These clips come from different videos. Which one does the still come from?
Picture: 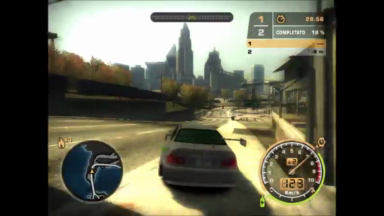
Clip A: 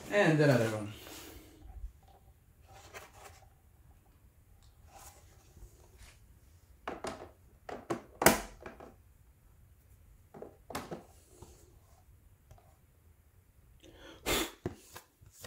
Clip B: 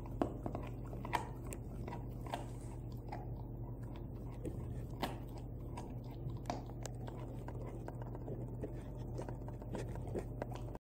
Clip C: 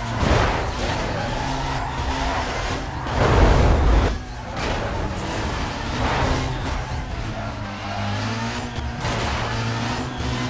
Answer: C